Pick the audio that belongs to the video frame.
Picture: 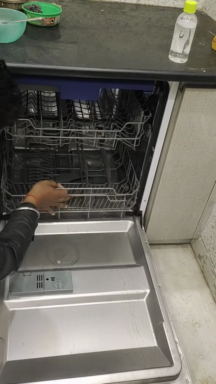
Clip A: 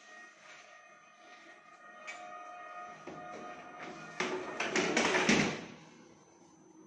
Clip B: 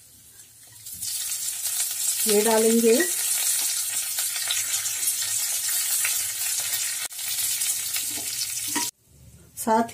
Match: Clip A